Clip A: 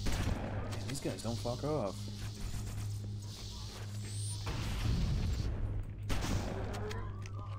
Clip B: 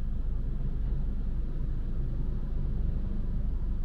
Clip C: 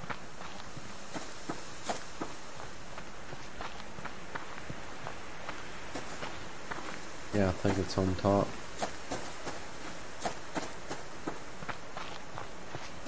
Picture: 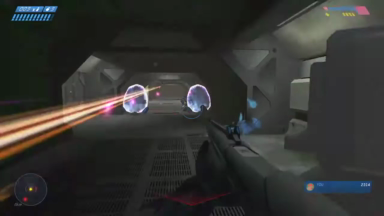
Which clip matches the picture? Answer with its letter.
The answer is A